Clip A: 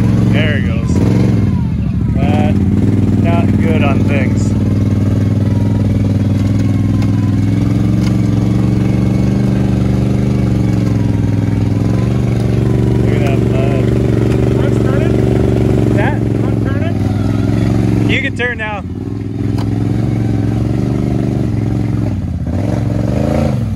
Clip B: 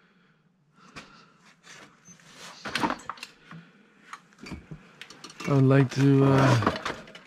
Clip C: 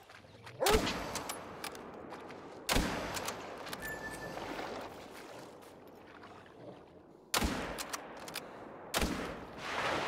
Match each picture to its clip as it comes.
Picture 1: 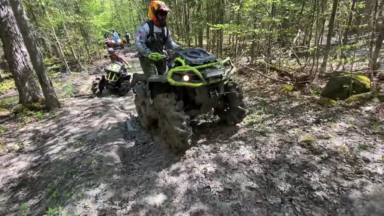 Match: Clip A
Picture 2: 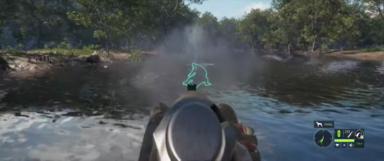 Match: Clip C